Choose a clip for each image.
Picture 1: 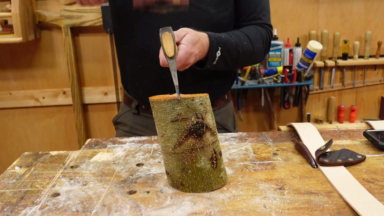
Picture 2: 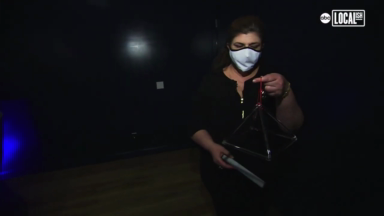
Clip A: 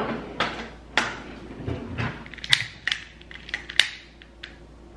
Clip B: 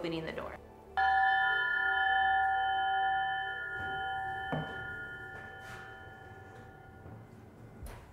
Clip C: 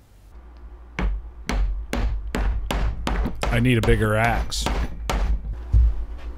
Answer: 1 C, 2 B